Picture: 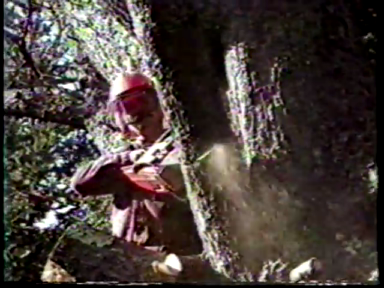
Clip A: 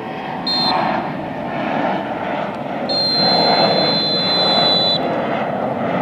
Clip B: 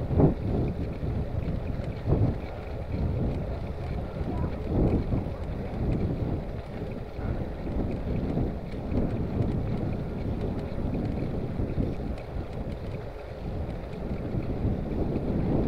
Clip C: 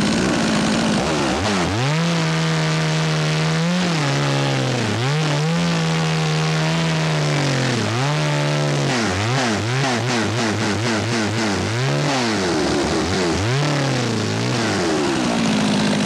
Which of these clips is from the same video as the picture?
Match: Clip C